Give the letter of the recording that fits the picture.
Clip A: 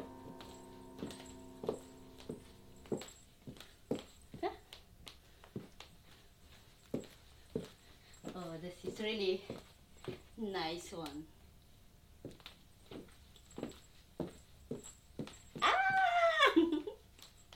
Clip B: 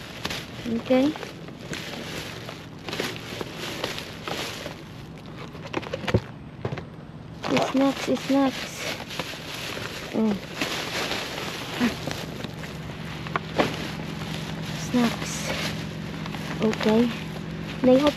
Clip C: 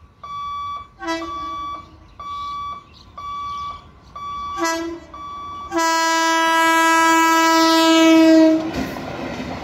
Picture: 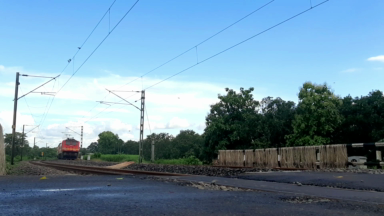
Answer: C